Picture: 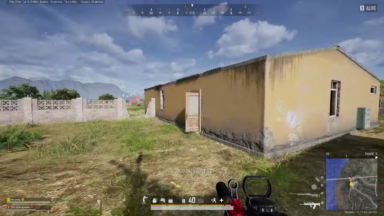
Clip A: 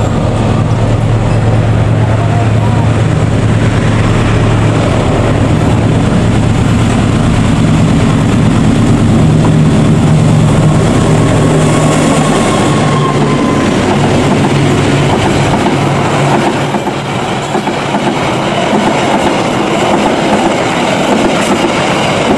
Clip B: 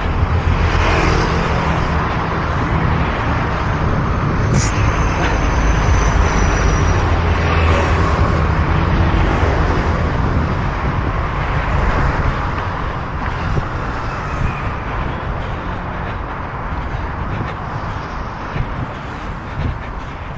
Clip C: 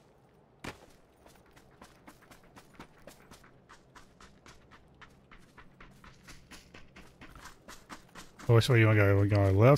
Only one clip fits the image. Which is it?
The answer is C